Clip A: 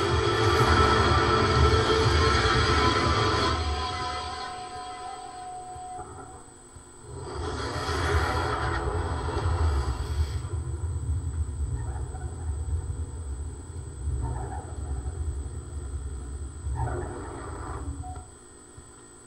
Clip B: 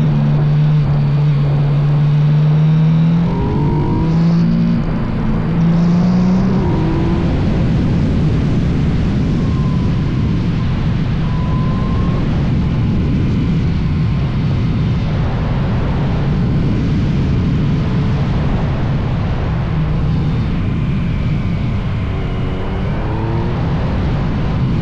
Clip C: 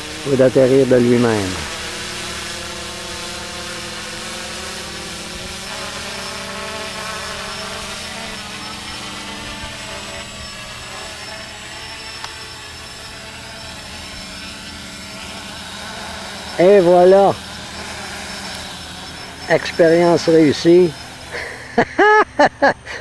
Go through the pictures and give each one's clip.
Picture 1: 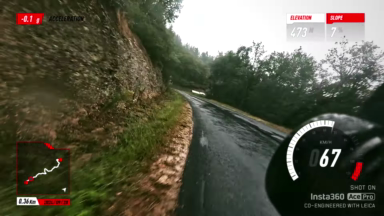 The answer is B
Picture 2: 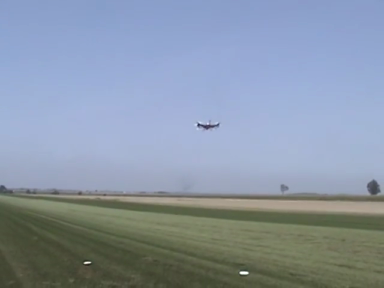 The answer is C